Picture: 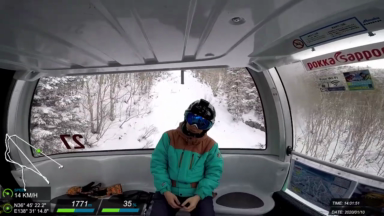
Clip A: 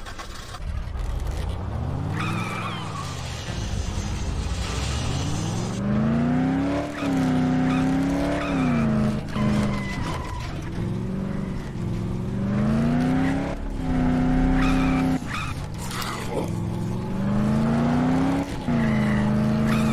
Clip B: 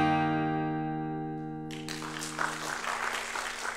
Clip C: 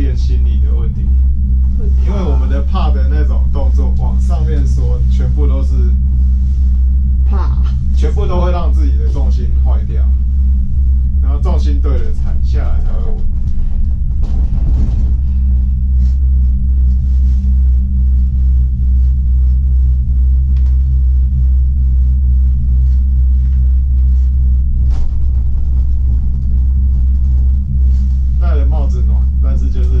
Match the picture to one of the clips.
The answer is C